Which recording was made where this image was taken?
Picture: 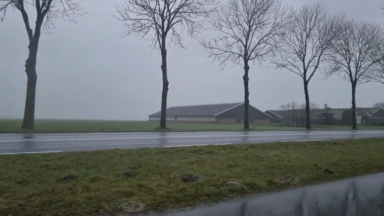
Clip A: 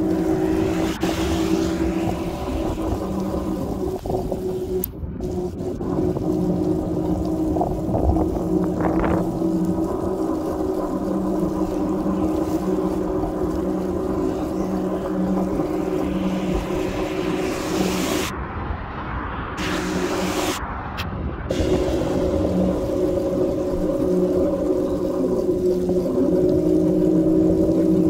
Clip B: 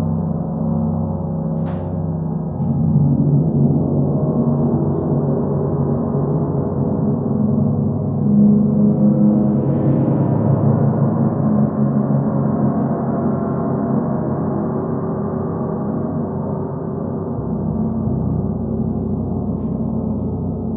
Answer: A